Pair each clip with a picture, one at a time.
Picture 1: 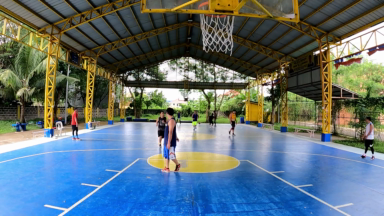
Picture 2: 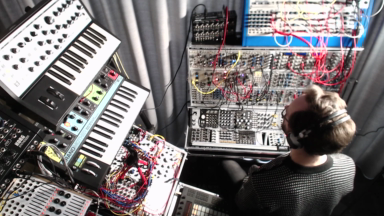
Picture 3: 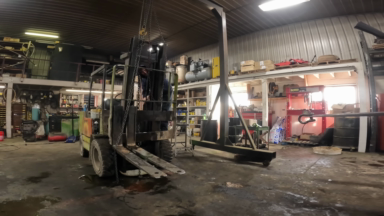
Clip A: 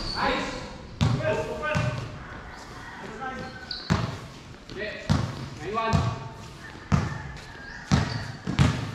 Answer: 1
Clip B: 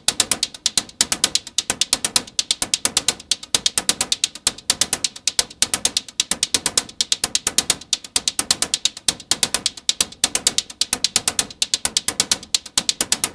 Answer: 2